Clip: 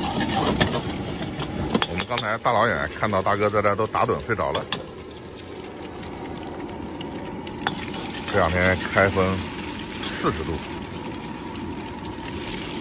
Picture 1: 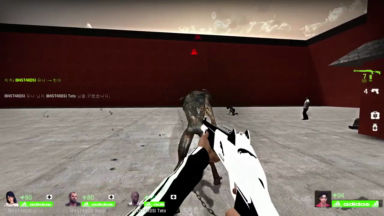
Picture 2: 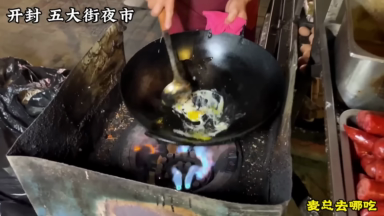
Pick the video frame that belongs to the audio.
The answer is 2